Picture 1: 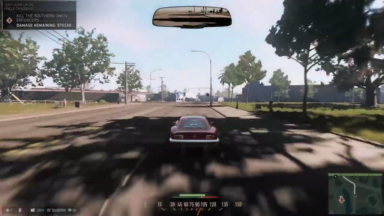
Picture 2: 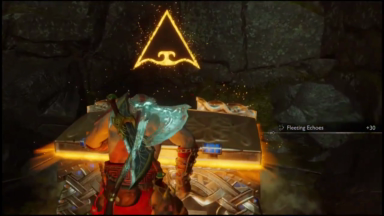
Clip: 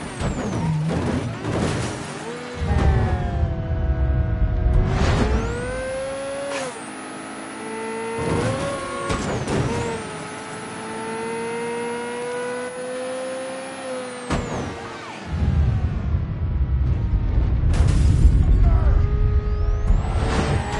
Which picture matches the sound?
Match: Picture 1